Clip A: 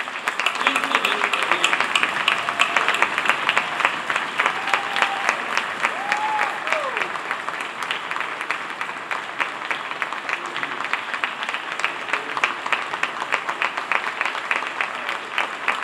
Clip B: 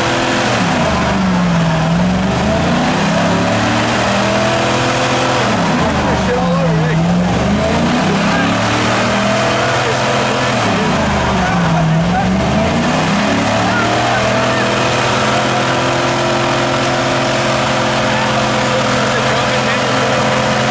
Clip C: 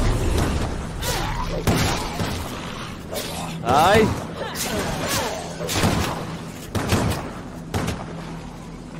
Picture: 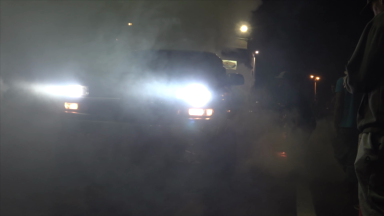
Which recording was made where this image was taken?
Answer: B